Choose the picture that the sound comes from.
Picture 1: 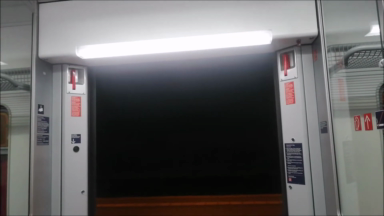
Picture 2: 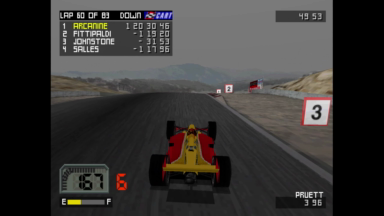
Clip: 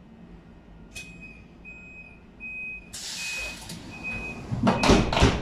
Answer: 1